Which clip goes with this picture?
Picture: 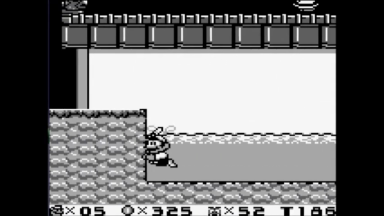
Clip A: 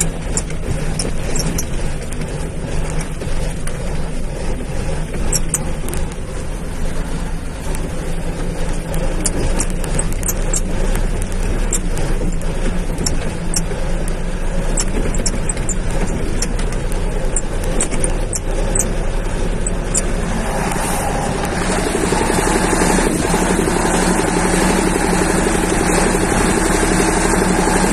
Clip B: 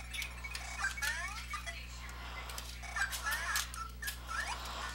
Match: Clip B